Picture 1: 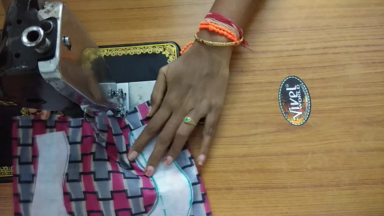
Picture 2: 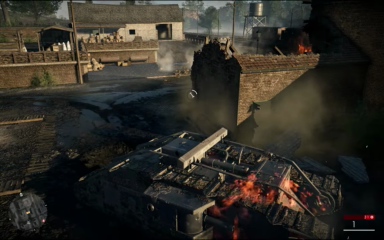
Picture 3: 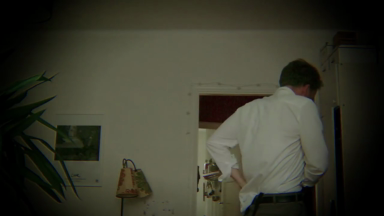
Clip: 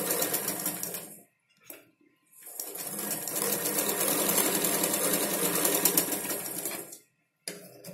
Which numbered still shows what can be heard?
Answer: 1